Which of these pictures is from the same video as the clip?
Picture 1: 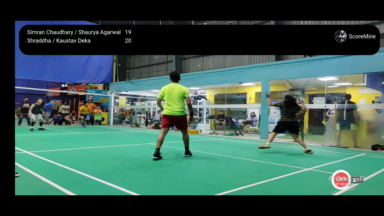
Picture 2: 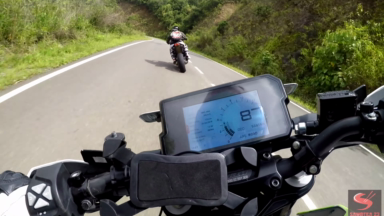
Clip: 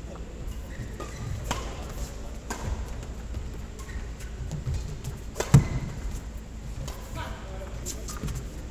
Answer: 1